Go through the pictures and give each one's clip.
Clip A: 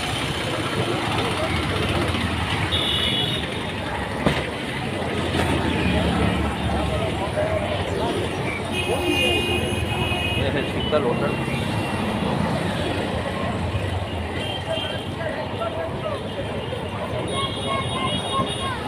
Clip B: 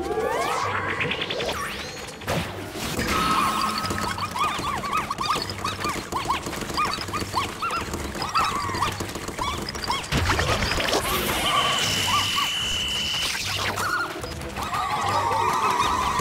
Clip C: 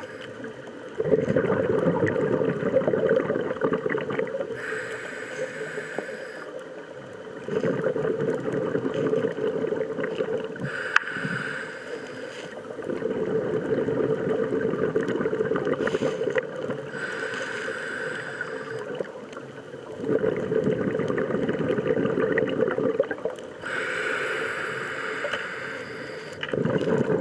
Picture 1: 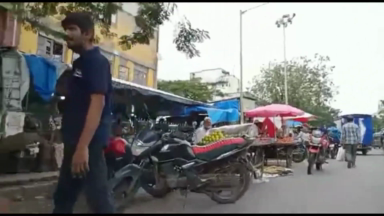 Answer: A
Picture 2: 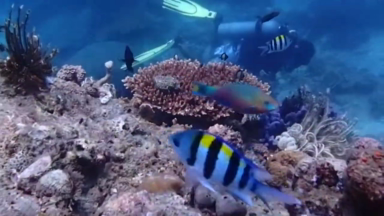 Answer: C